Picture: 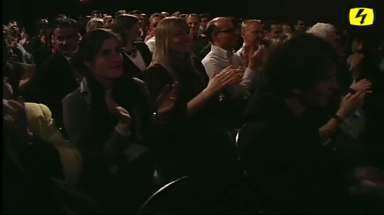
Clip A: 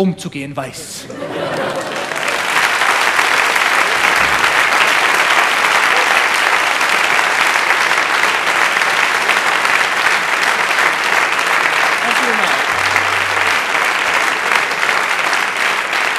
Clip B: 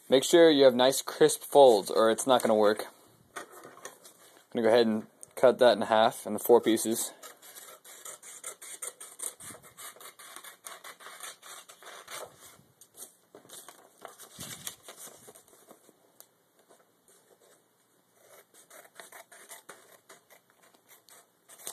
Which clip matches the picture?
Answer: A